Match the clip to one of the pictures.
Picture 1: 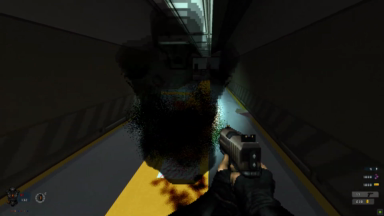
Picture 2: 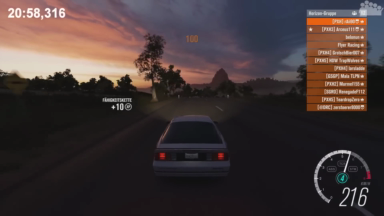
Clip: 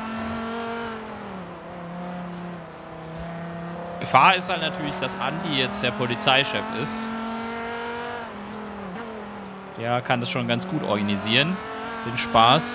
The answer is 2